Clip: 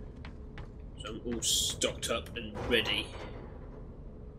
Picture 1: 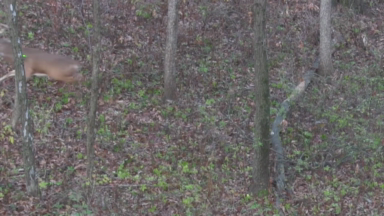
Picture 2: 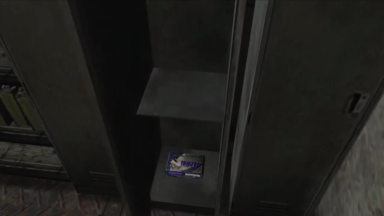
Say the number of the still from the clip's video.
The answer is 2